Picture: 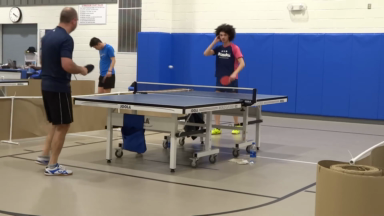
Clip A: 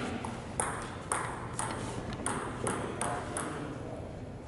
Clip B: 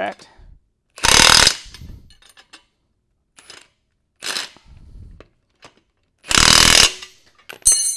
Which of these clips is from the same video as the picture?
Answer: A